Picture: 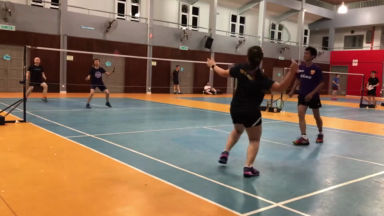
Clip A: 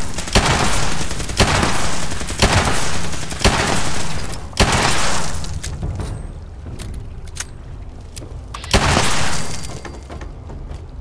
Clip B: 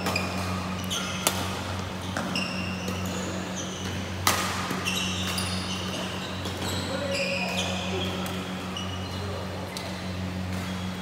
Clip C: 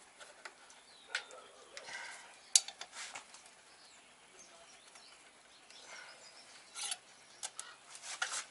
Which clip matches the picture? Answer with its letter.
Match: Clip B